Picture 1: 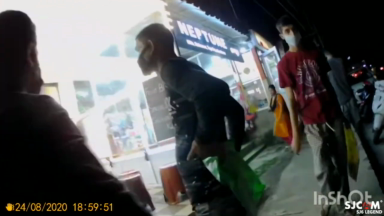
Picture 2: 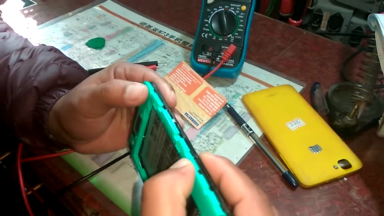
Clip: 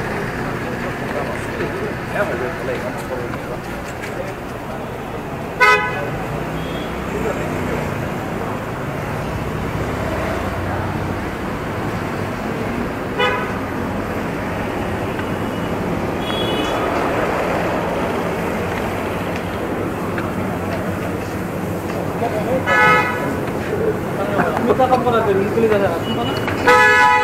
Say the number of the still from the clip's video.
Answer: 1